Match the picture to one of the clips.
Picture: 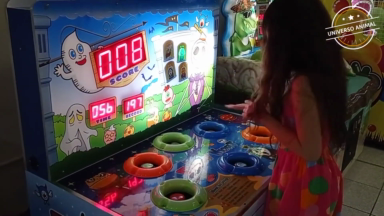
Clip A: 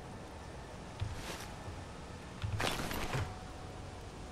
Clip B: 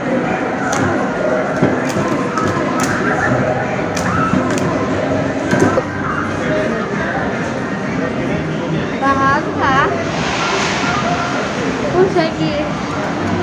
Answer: B